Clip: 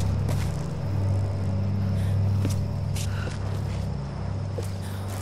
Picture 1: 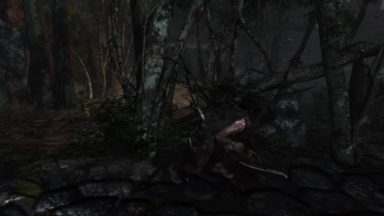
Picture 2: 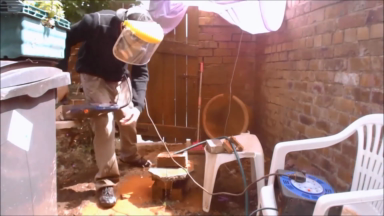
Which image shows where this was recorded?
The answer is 1